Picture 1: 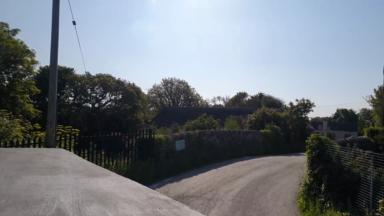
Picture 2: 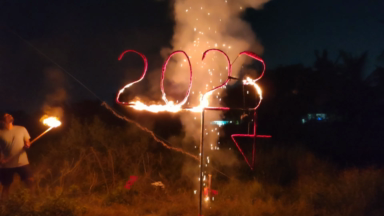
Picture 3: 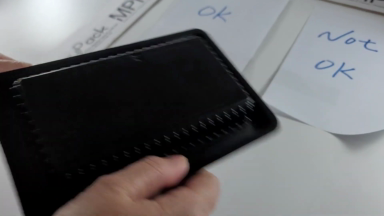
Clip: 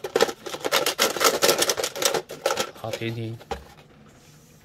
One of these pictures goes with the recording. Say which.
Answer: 3